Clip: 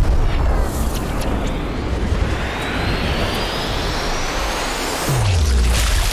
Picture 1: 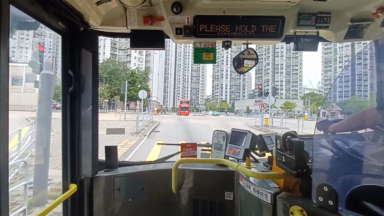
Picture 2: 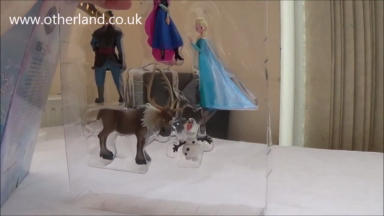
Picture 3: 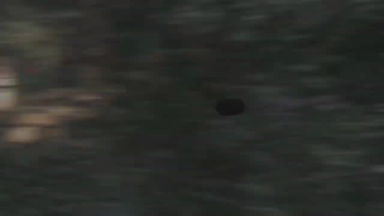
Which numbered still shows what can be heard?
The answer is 3